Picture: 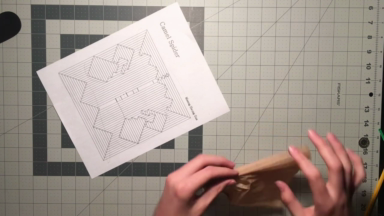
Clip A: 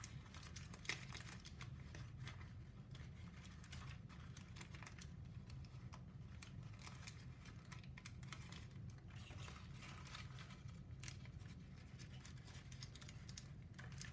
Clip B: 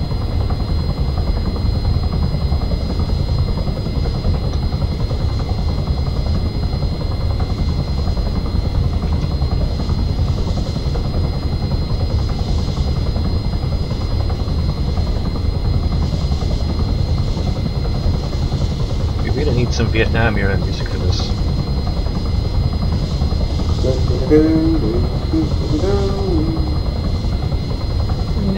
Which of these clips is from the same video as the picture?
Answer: A